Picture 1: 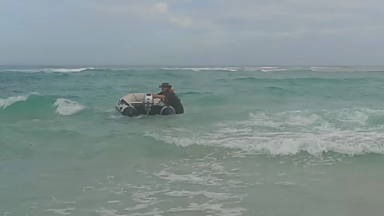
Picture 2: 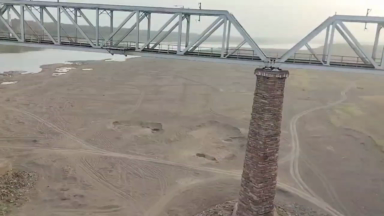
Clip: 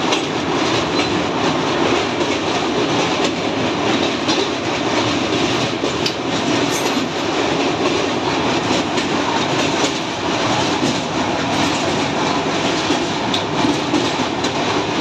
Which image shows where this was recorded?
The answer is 2